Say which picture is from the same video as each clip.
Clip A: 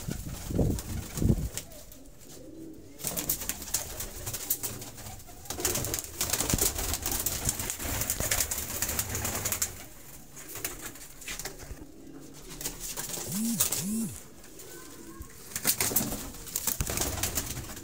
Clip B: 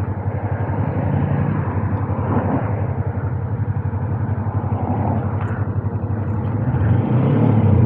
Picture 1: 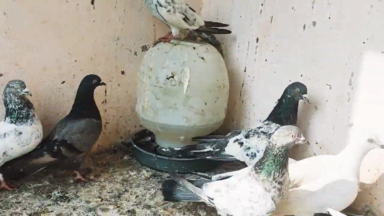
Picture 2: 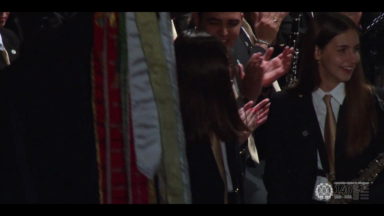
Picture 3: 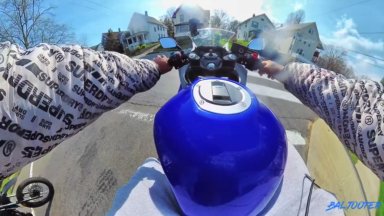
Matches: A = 1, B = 3